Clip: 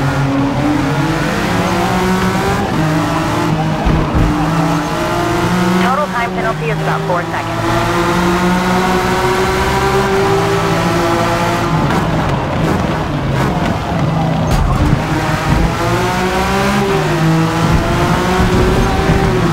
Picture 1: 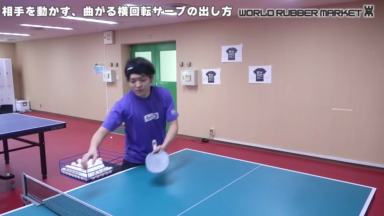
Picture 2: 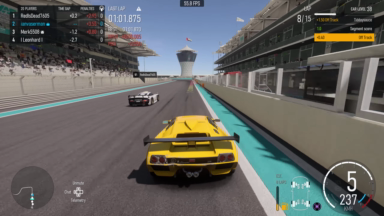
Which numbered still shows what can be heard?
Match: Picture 2